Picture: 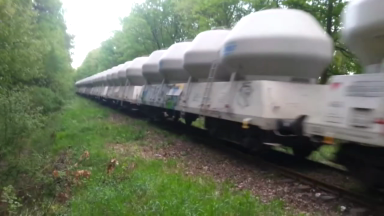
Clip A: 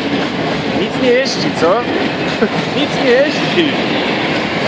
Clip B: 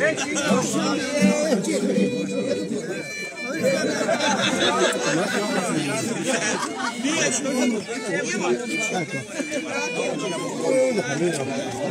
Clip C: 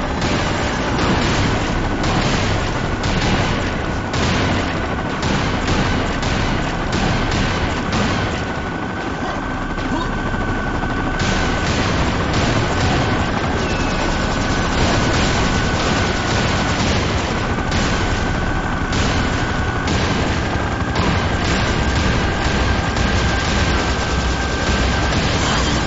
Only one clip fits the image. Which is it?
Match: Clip A